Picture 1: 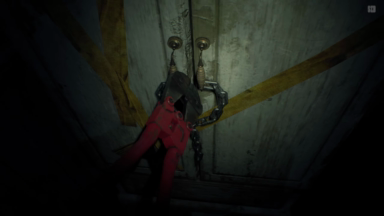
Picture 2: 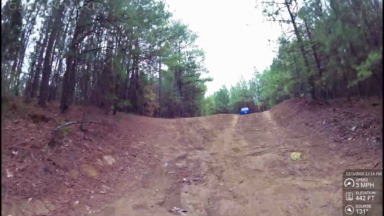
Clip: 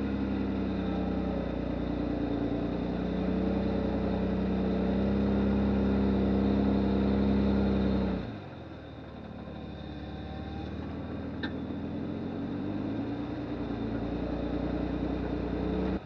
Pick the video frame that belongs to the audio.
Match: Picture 2